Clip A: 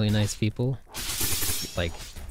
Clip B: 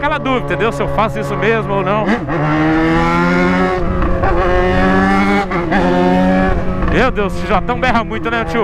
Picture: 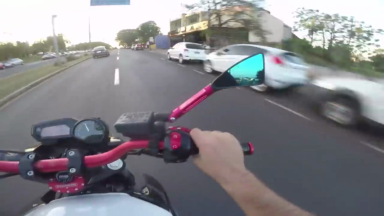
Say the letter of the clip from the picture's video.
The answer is B